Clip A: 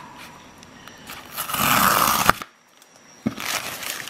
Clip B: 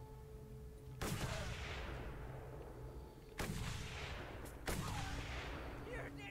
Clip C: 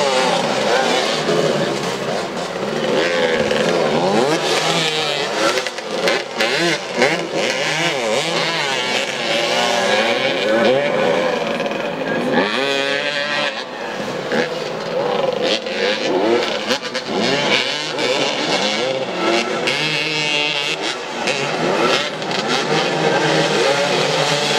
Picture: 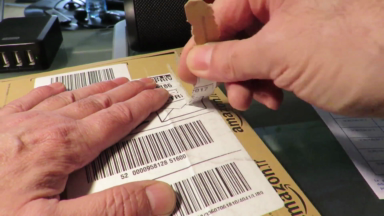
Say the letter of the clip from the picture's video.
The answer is A